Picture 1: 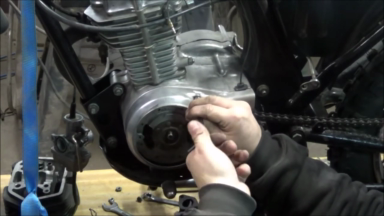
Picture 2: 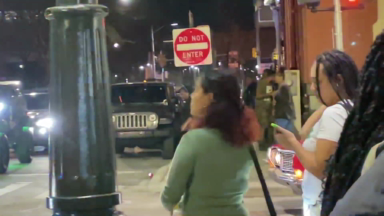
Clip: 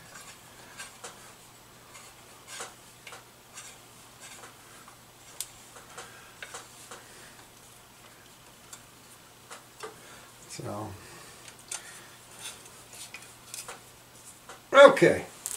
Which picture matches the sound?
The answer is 1